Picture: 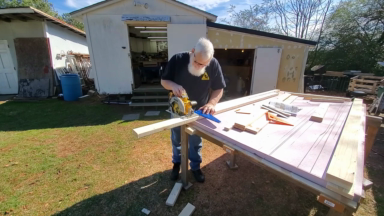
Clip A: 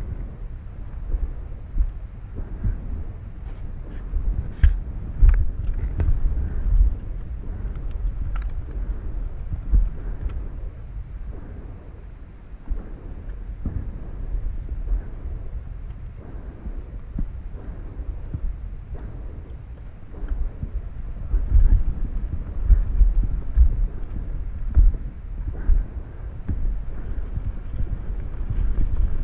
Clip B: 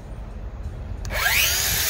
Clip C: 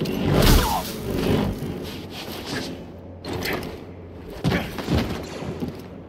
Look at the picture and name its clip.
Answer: B